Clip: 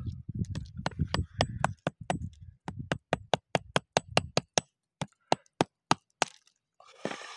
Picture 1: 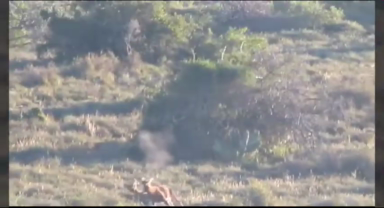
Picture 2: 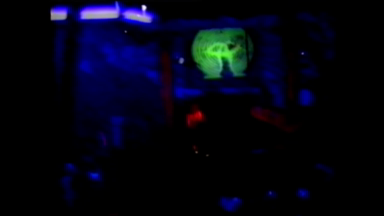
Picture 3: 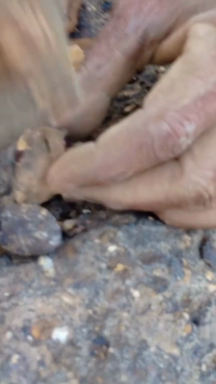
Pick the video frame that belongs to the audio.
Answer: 3